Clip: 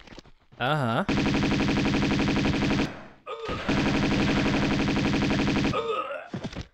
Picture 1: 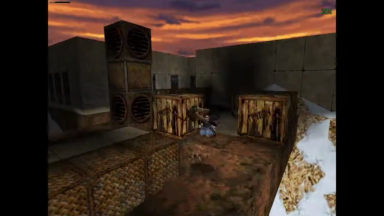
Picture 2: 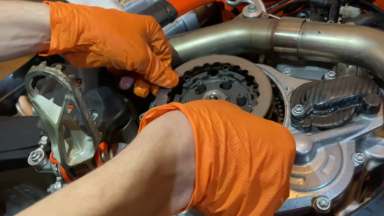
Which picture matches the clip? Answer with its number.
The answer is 1